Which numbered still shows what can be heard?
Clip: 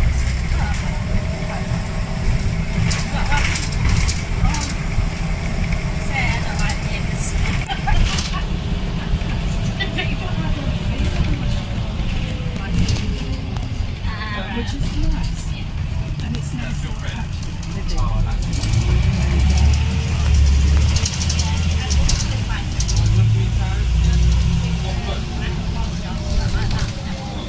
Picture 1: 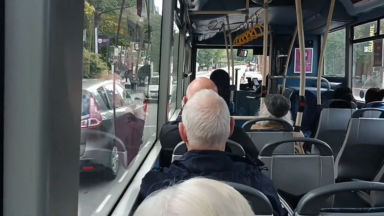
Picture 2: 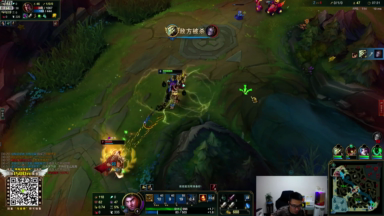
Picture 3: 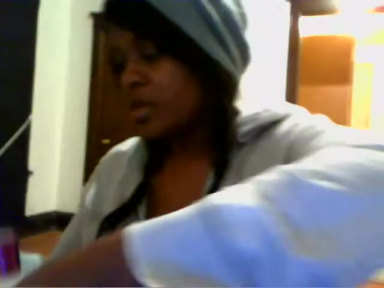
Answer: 1